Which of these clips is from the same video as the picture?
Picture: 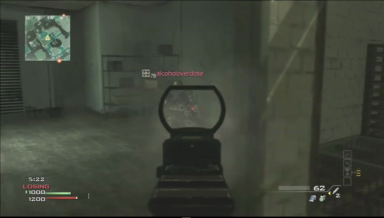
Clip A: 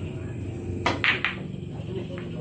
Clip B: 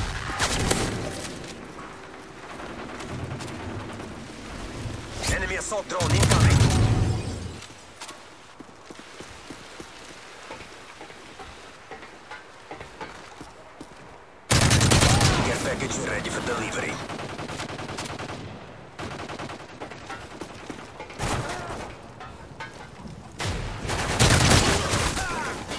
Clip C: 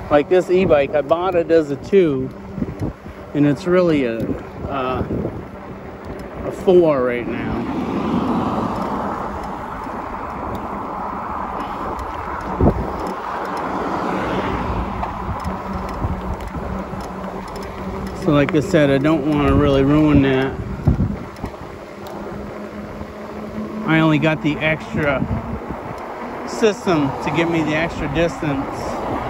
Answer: B